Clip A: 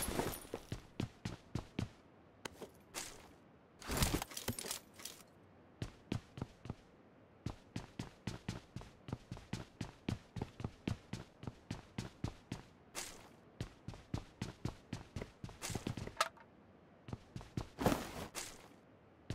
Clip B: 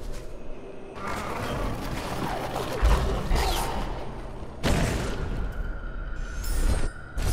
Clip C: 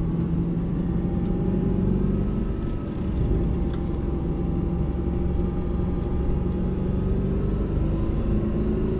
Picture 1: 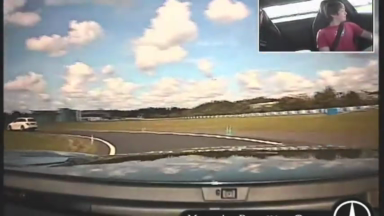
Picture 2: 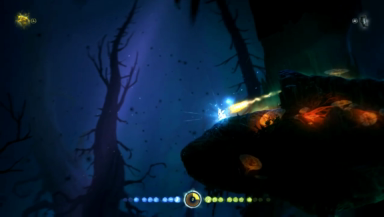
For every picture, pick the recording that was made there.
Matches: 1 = C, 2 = B